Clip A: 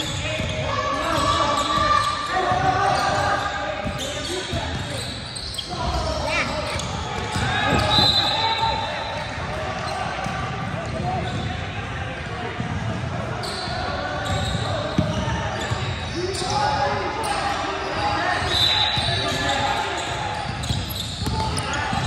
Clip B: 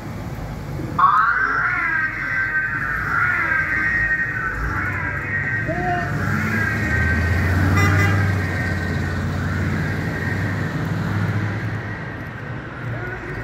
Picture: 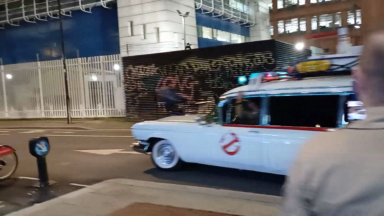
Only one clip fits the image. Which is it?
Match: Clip B